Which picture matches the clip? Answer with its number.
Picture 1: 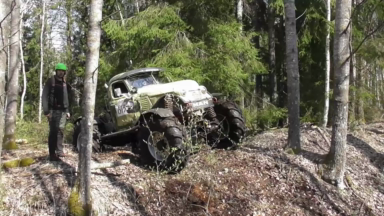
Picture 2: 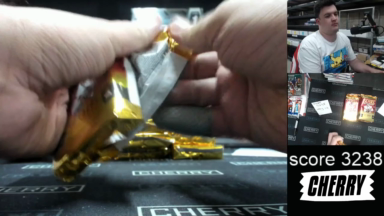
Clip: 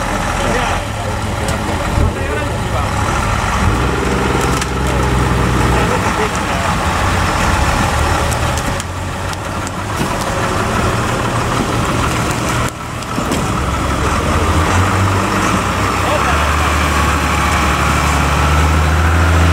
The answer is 1